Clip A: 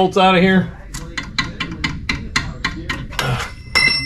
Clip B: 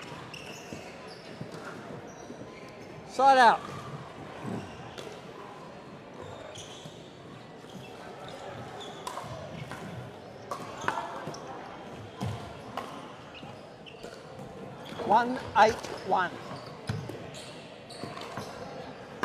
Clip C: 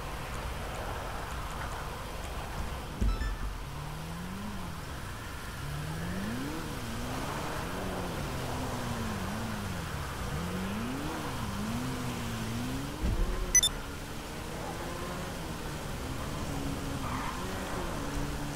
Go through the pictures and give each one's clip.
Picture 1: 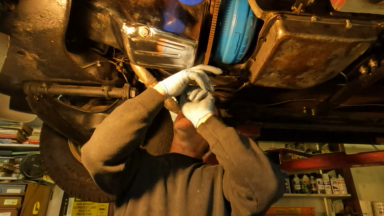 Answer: A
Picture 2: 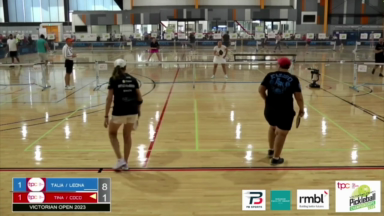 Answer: B